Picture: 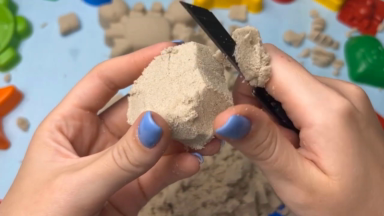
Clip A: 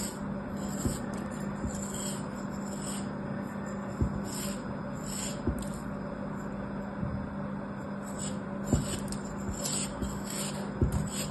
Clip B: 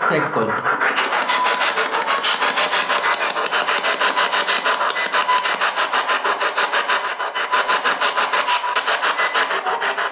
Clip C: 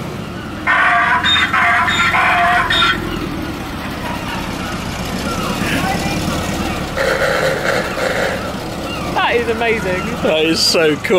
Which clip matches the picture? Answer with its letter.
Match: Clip A